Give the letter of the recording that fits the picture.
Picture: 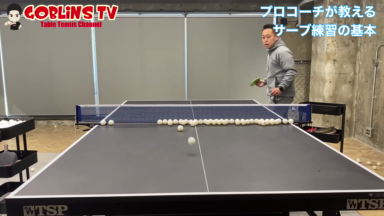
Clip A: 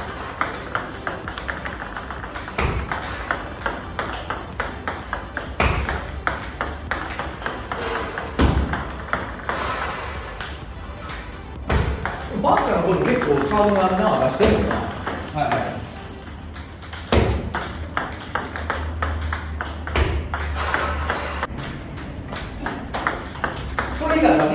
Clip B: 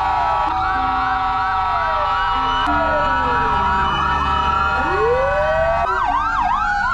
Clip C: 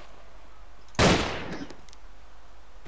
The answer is A